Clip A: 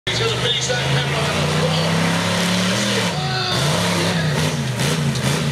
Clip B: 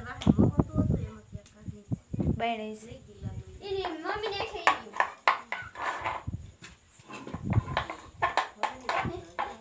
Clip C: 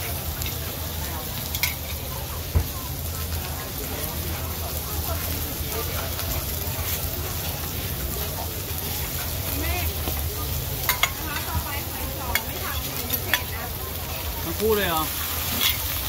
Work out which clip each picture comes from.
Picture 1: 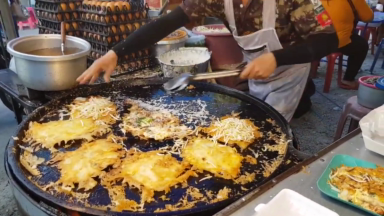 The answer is C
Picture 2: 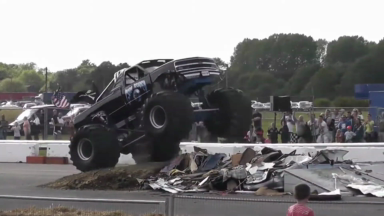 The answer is A